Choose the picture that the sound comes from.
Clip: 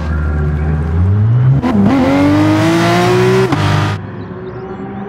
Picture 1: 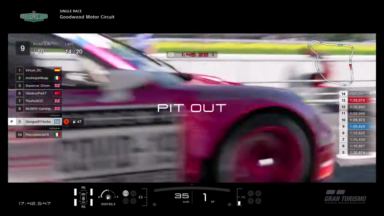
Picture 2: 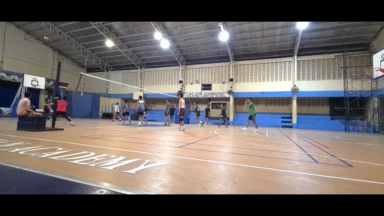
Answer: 1